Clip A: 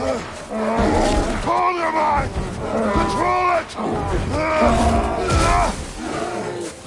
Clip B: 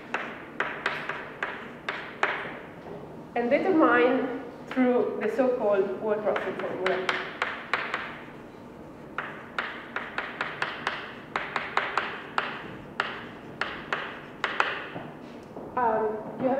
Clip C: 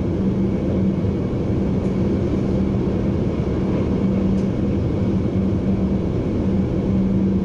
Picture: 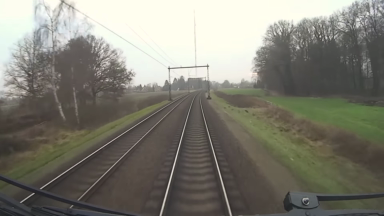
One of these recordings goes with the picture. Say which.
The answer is C